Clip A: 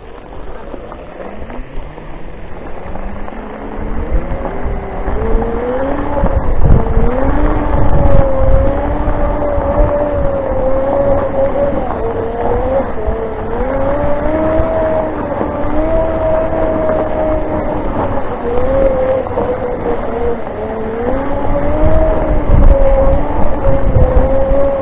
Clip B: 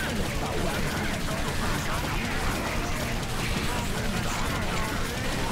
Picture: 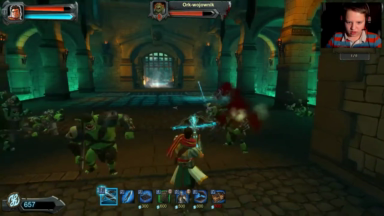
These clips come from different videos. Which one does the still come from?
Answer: B